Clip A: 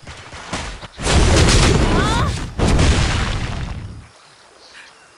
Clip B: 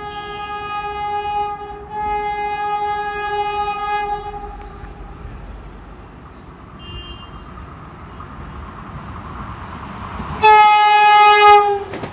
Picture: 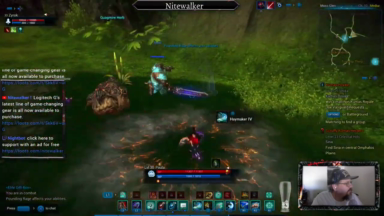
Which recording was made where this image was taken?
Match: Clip A